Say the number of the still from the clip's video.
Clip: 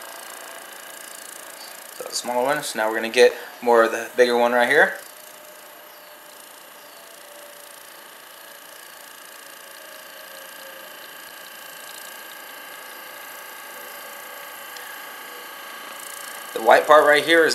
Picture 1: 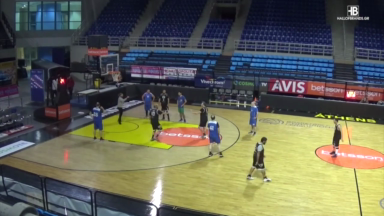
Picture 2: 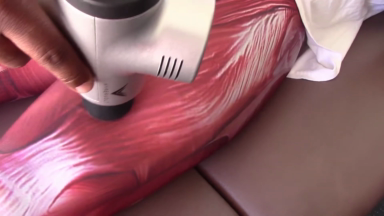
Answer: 2